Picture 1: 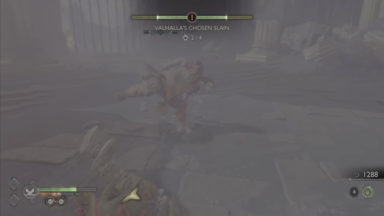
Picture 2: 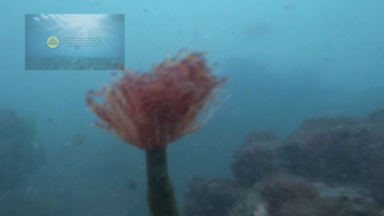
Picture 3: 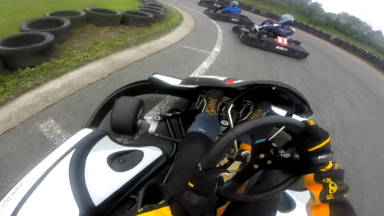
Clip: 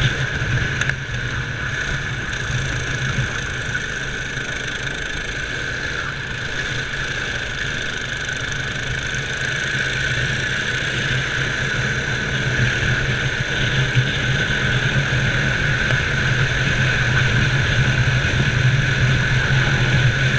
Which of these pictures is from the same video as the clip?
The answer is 3